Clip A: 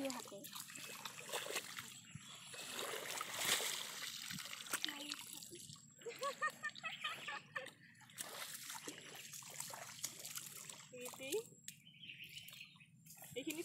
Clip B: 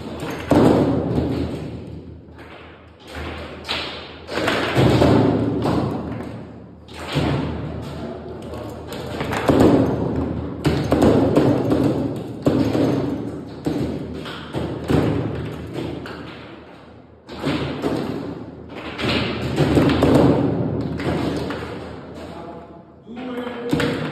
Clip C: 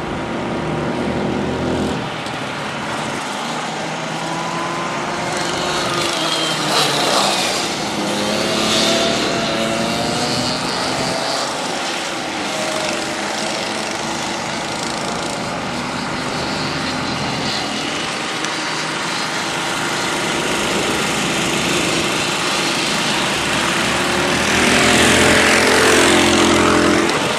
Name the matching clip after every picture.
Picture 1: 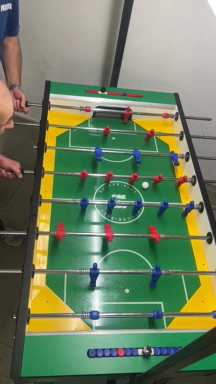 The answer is B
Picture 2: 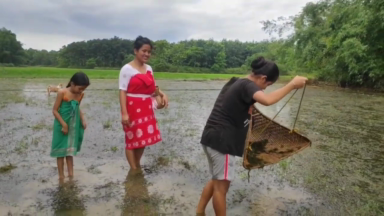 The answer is A